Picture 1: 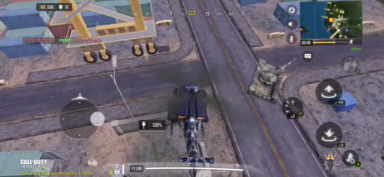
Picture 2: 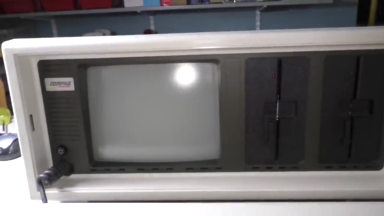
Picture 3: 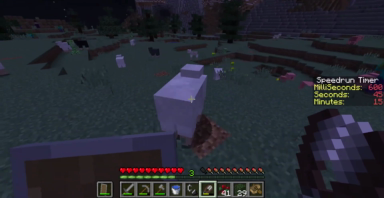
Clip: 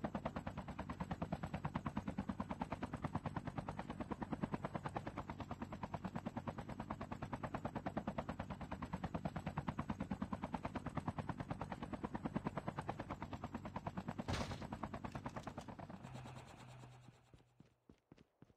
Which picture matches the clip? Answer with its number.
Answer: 1